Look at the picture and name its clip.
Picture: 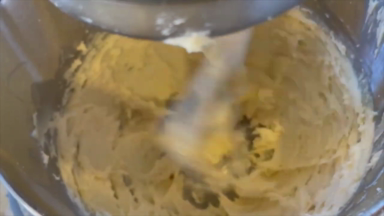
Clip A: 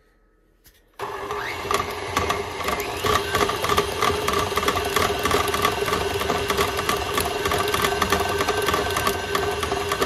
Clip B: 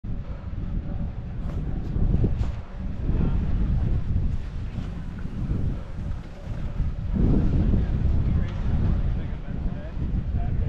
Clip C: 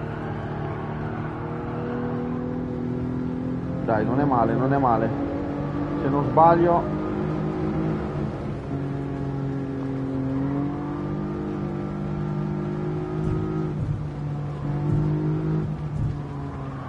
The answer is A